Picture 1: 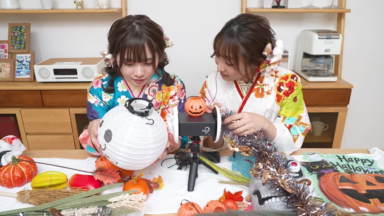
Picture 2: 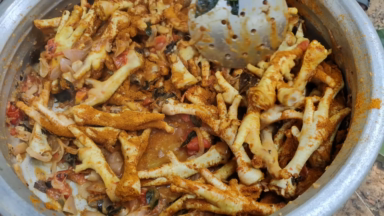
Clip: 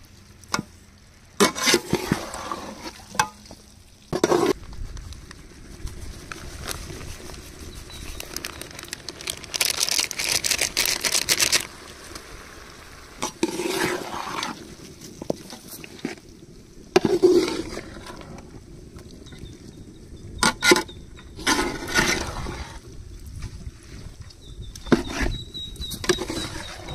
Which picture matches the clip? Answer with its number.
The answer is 2